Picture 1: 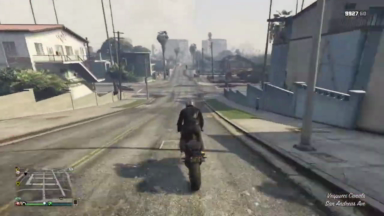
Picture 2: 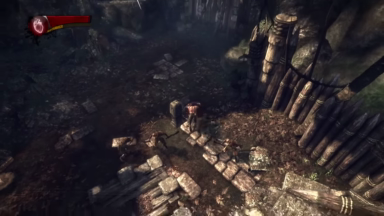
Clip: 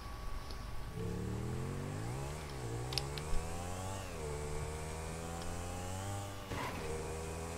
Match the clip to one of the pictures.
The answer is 1